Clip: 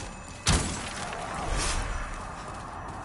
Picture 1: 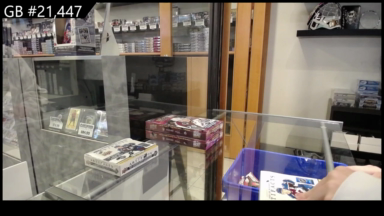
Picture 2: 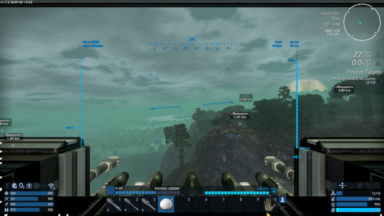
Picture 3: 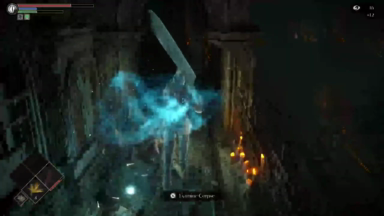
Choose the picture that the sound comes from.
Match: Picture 3